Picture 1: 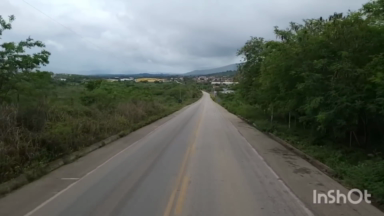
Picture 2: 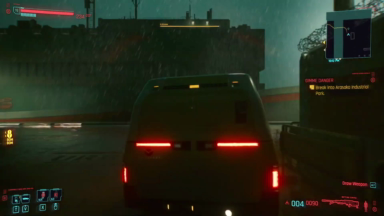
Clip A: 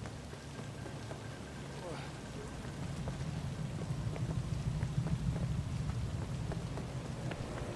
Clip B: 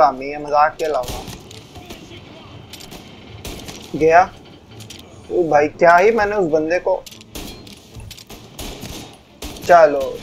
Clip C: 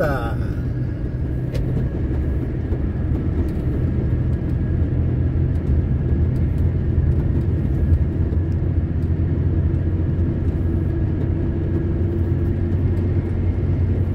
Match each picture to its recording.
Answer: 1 C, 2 A